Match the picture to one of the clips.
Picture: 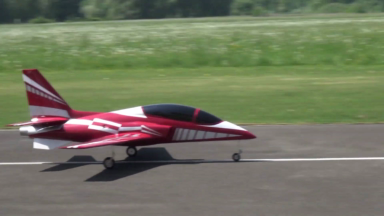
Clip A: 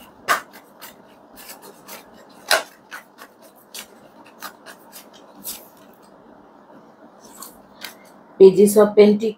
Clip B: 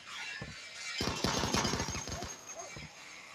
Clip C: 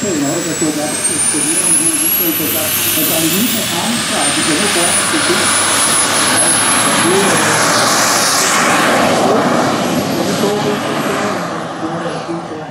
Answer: C